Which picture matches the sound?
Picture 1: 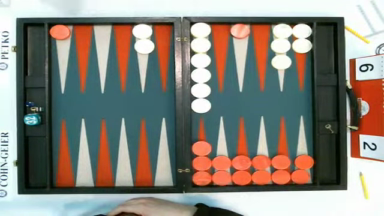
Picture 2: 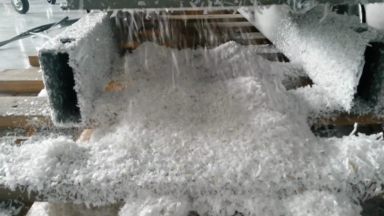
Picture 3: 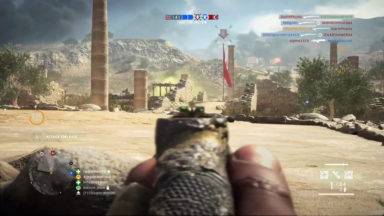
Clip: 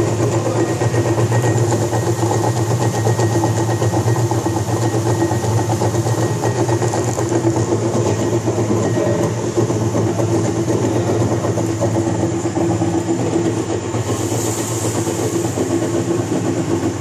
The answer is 2